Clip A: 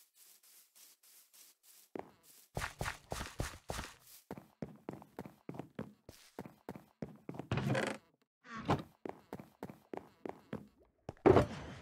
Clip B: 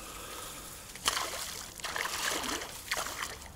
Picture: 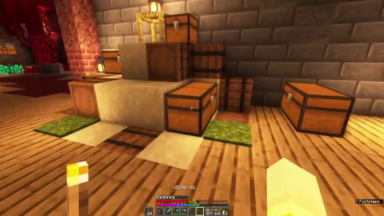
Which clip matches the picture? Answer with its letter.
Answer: A